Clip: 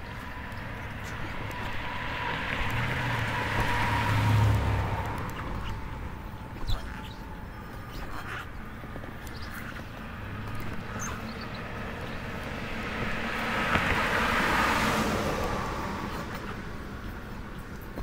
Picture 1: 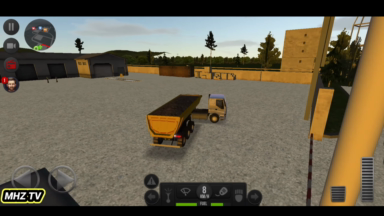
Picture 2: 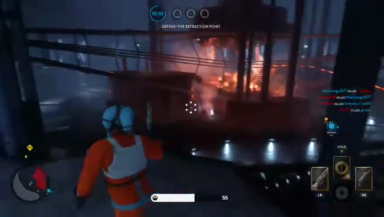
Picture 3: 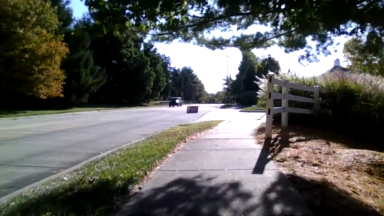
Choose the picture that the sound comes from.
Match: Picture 3